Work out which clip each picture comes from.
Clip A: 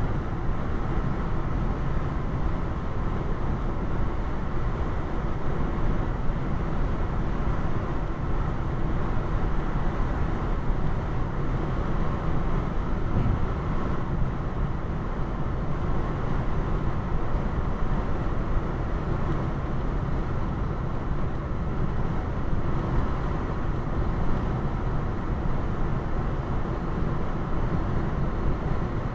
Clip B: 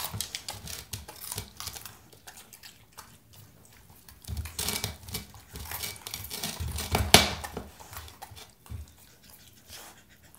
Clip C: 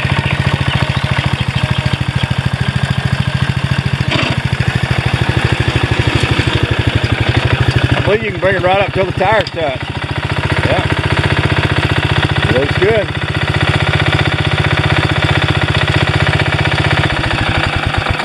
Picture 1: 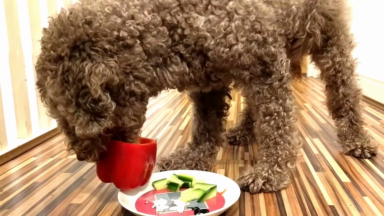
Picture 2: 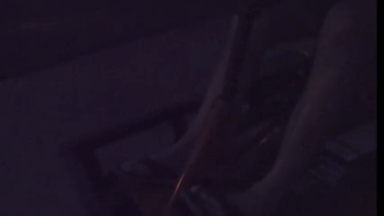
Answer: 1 B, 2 C